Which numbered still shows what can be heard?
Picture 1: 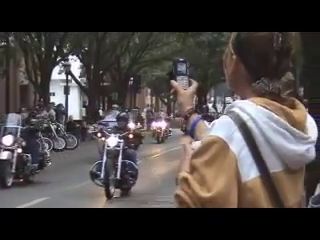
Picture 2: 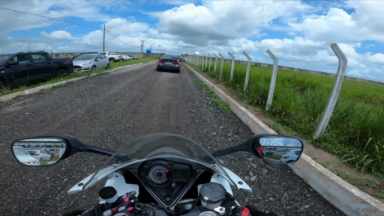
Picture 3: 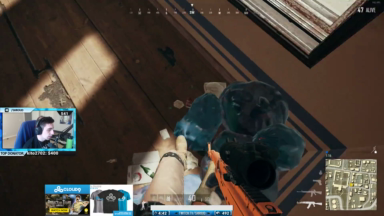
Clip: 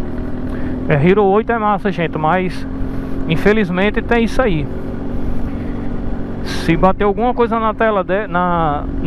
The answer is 2